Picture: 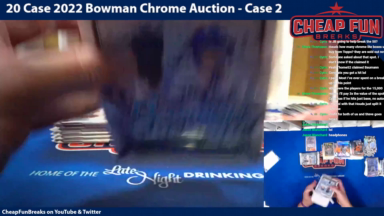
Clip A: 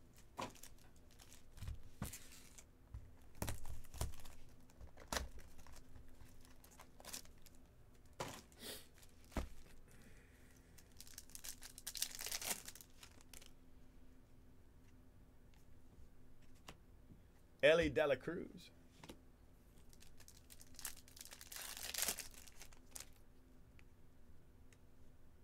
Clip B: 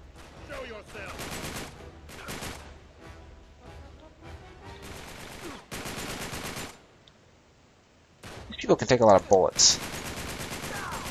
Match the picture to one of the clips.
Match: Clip A